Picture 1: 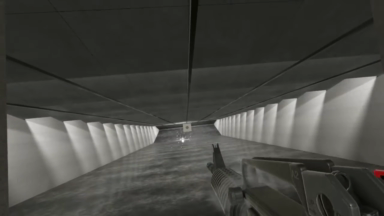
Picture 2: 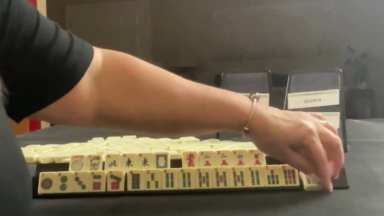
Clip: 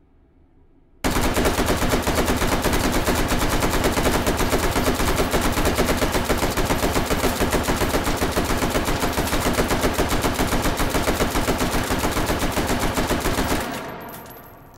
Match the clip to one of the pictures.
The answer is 1